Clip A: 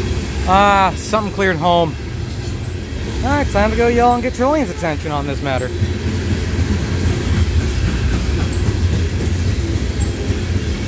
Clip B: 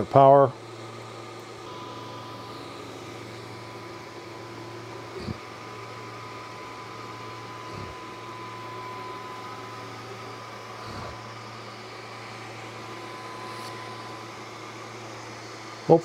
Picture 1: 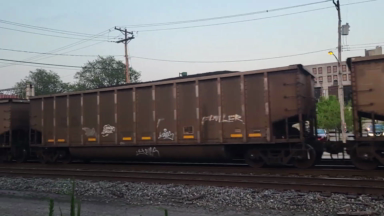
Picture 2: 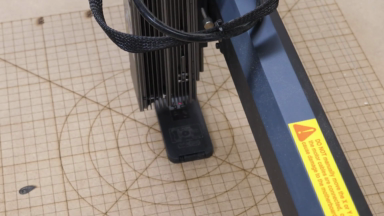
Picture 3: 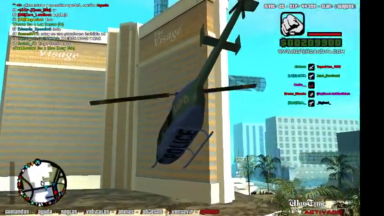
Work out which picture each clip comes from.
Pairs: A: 1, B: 2